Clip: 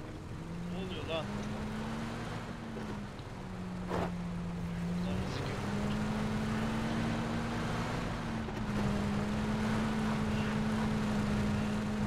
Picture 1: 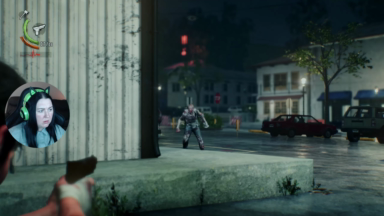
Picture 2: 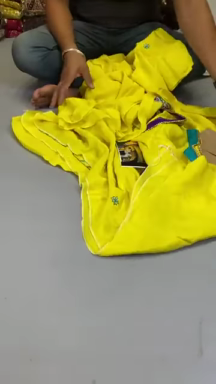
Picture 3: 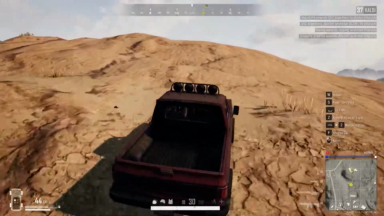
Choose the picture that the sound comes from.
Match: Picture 3